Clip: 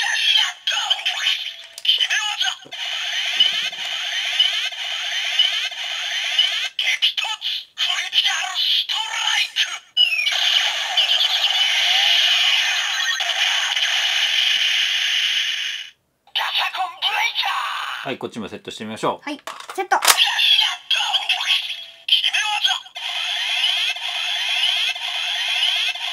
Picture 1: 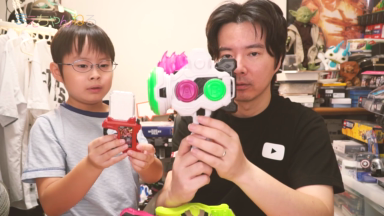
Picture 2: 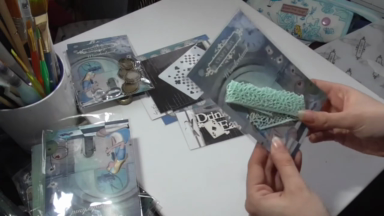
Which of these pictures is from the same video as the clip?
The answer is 1